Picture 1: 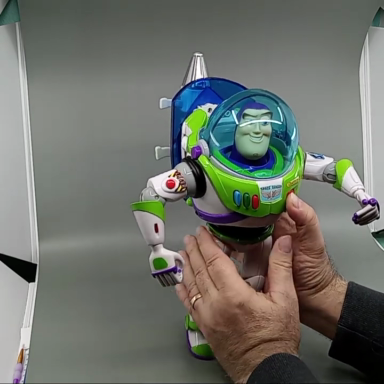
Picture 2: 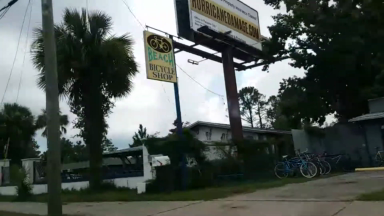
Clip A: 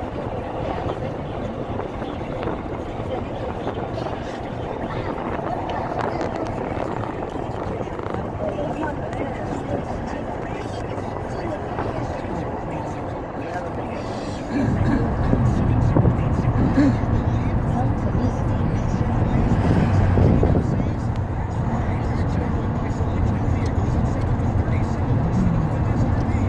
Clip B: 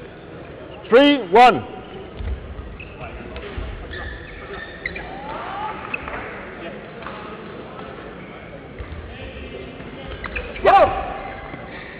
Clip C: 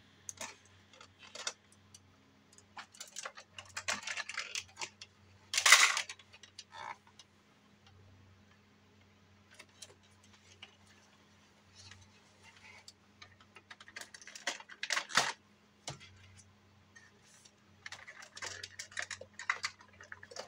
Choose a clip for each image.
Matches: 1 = C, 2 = A